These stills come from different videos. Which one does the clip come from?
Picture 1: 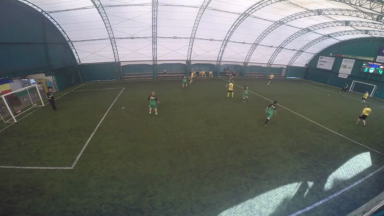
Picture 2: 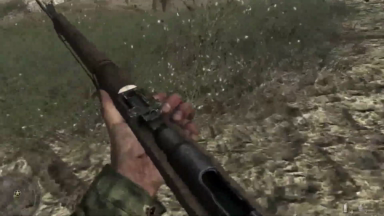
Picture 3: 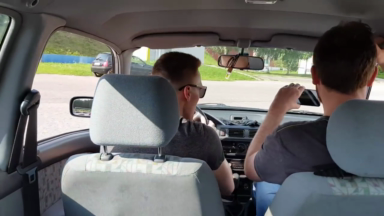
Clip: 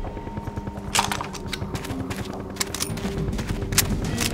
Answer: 2